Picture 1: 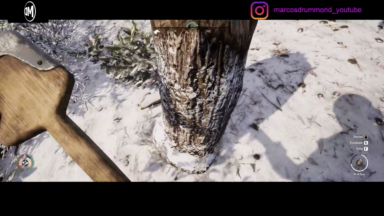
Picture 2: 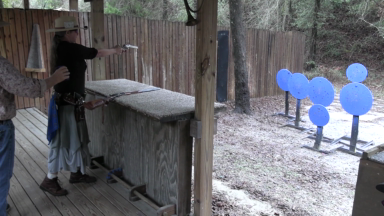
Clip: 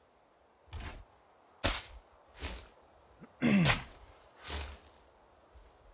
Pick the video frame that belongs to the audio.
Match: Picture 1